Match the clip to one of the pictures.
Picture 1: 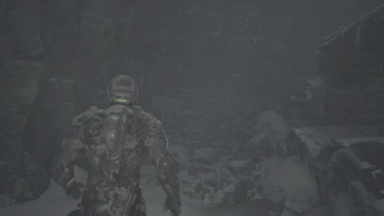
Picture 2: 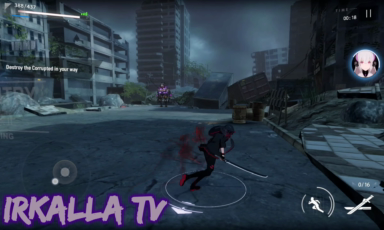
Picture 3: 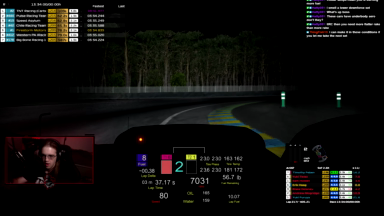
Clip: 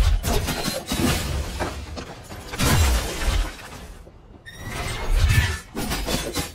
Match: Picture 2